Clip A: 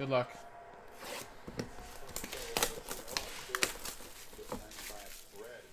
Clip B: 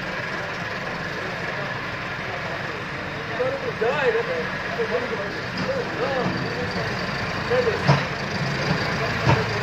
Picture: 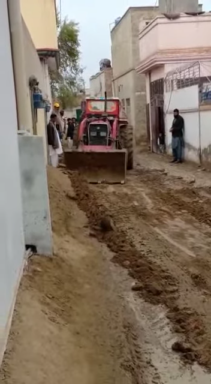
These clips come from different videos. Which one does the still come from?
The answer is B